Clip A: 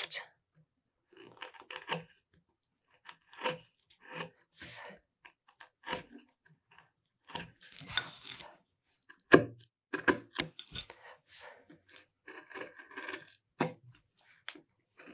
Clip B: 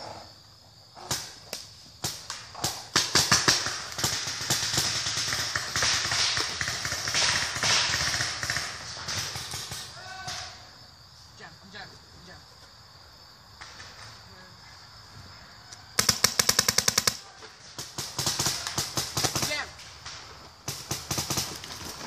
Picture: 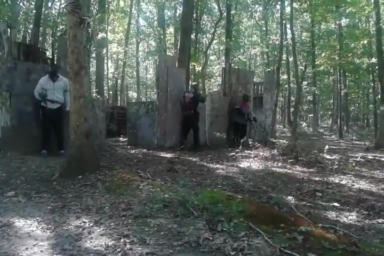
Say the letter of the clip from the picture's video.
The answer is B